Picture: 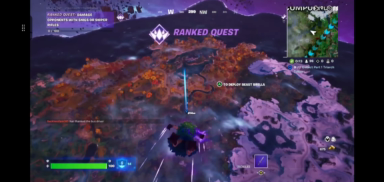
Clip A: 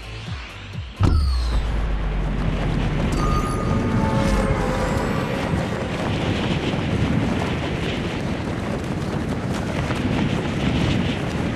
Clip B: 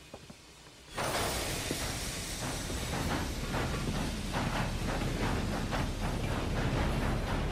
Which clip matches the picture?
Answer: A